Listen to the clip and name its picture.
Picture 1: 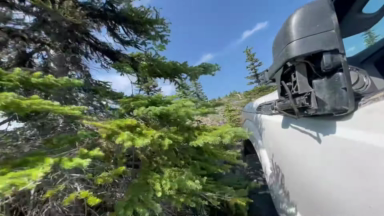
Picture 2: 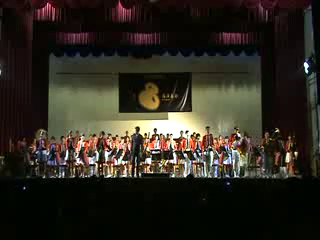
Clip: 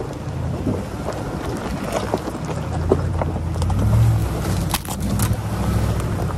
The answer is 1